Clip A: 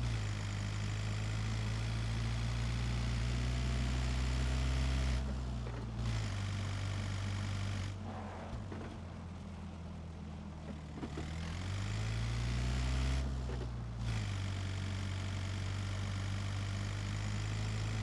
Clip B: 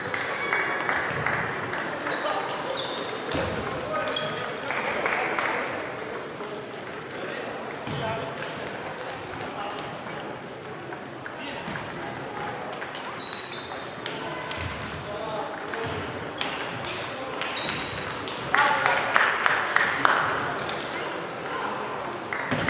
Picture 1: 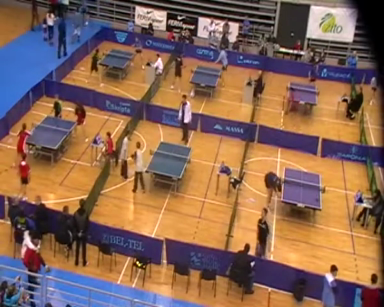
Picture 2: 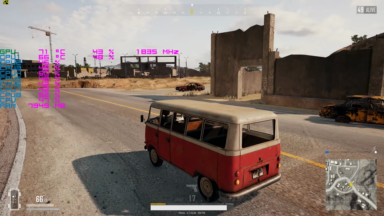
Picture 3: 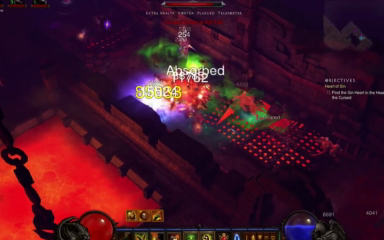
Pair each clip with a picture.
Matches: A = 2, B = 1